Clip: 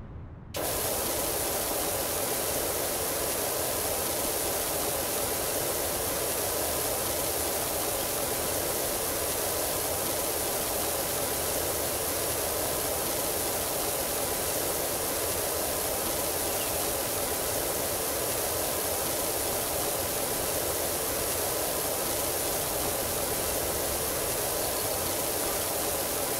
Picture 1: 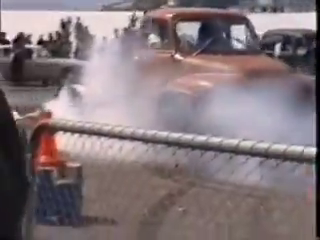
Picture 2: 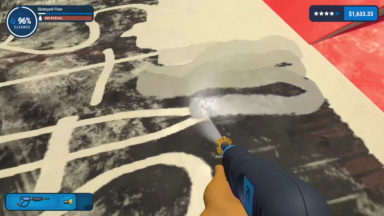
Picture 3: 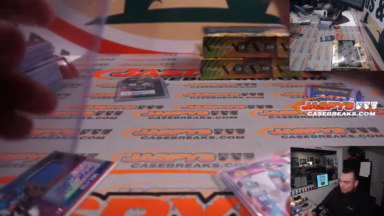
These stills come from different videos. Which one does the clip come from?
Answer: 2